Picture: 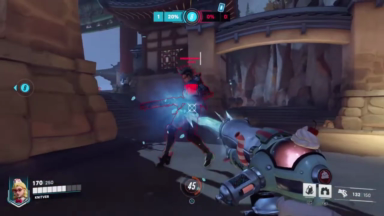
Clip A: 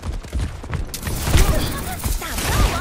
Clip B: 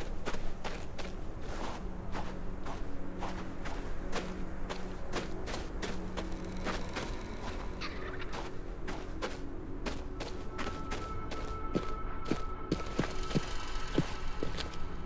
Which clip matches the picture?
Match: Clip A